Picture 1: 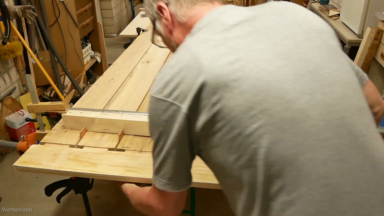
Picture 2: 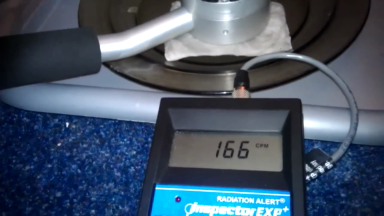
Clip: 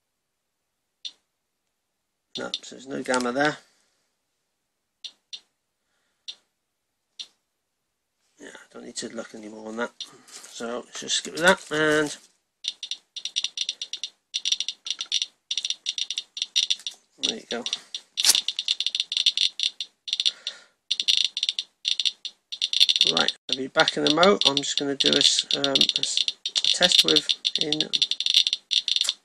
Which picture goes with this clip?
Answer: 2